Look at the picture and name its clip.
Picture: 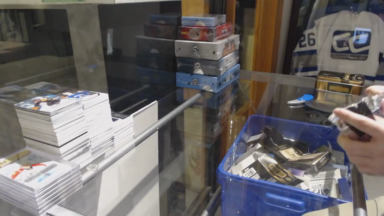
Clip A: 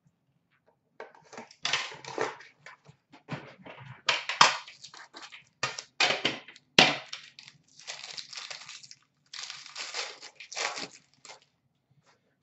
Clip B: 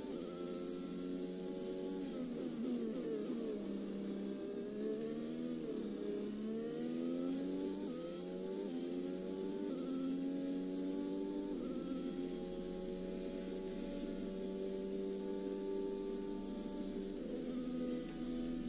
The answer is A